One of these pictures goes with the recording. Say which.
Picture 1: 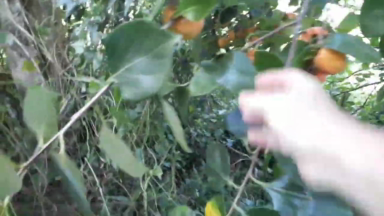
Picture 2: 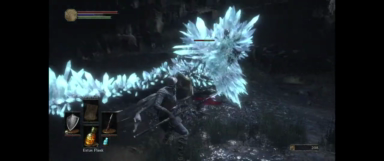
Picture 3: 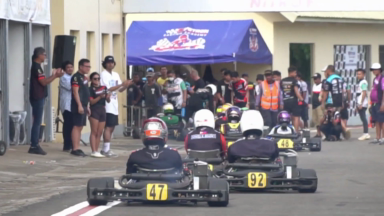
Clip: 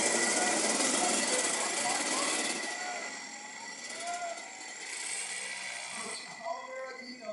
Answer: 3